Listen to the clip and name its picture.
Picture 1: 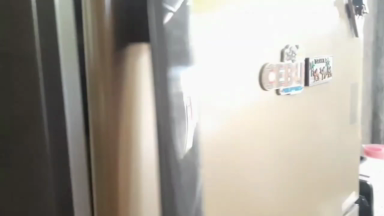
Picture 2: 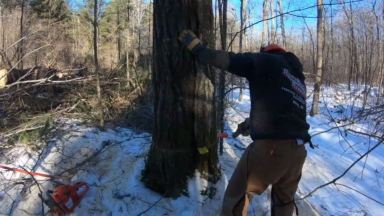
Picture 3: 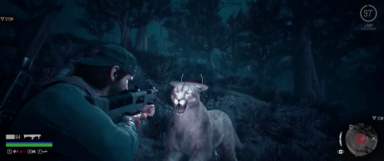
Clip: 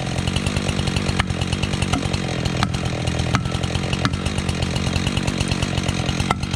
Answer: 2